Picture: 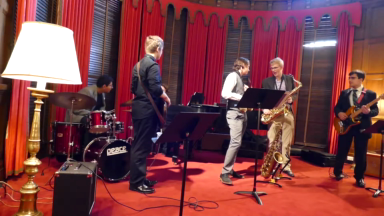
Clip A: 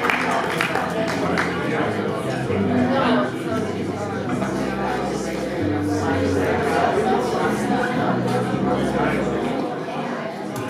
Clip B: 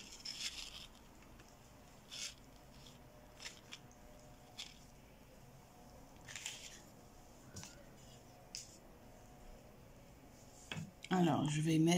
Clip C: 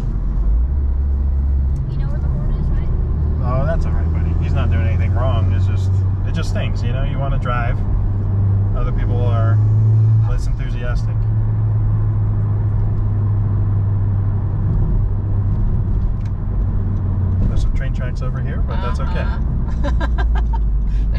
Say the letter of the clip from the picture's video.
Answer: A